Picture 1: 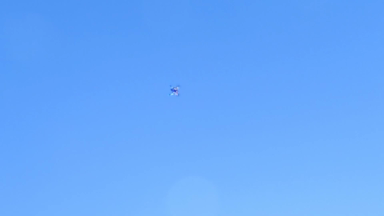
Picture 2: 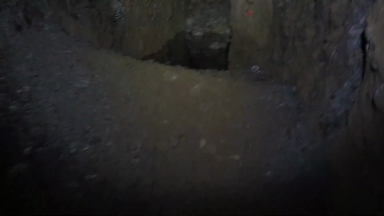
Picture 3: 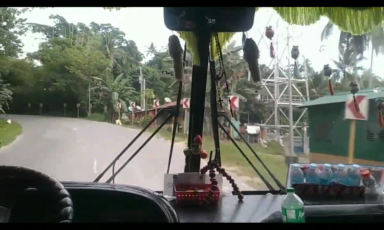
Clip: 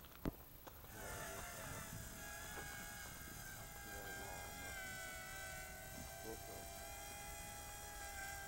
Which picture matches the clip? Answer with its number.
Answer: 1